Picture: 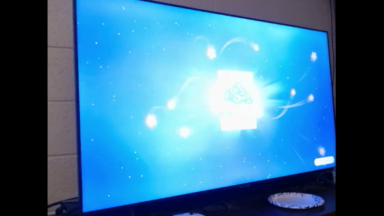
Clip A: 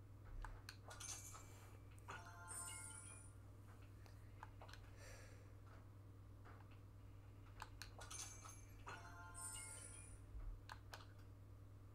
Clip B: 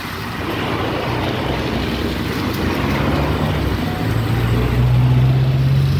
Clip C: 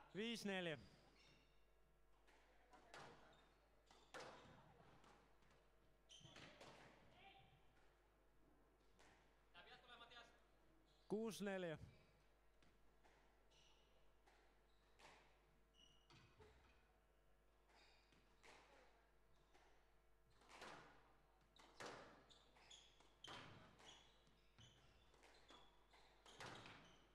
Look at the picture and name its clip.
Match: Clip A